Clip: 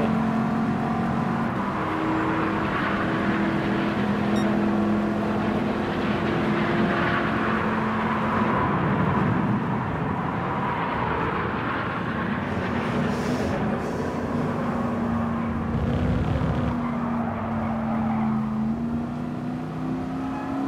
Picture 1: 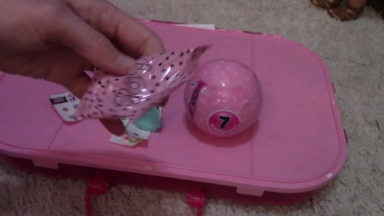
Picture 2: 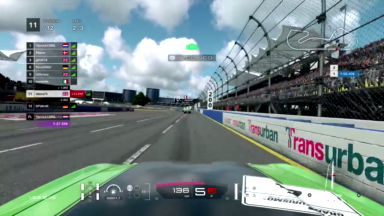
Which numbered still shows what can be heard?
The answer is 2